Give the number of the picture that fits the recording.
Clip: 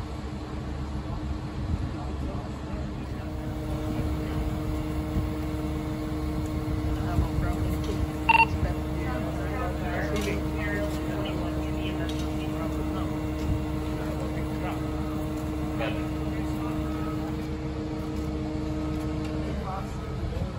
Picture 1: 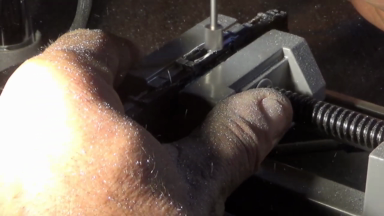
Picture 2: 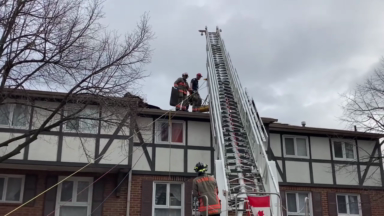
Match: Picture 2